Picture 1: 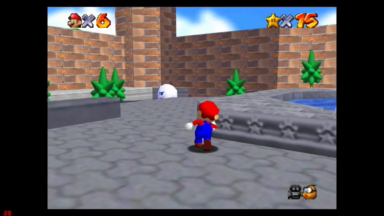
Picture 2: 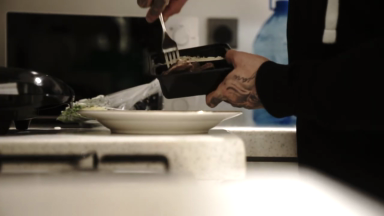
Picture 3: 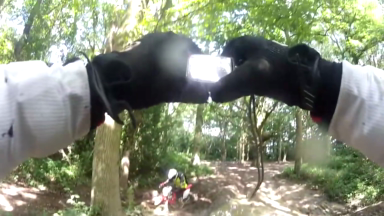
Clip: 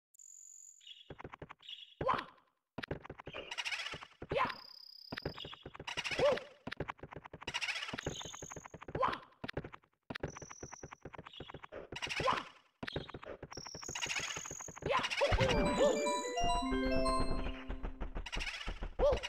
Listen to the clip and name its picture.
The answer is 1